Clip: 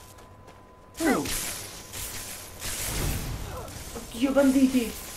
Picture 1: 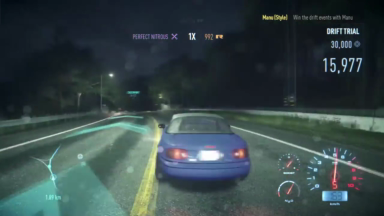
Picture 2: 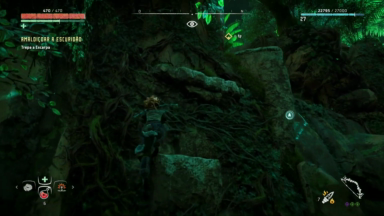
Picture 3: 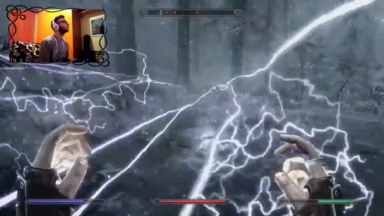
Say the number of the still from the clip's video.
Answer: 3